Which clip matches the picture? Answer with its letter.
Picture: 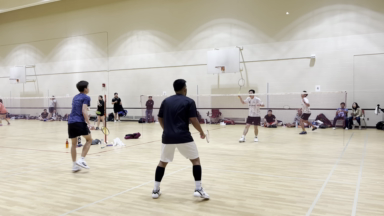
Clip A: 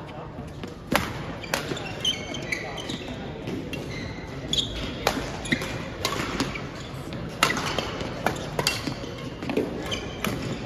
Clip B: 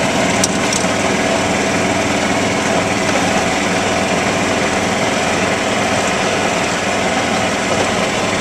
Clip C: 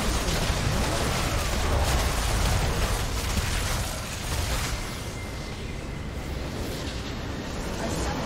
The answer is A